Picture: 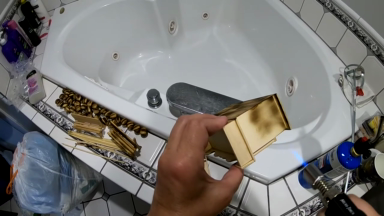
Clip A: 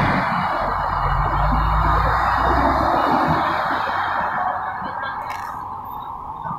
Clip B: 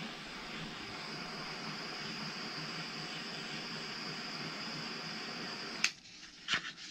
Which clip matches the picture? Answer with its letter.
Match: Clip B